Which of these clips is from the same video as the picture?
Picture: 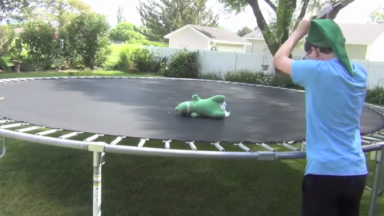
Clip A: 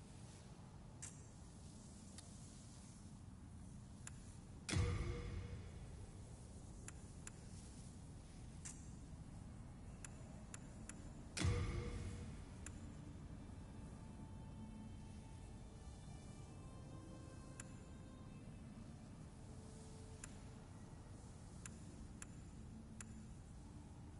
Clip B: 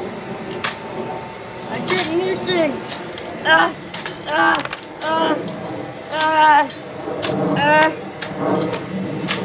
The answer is B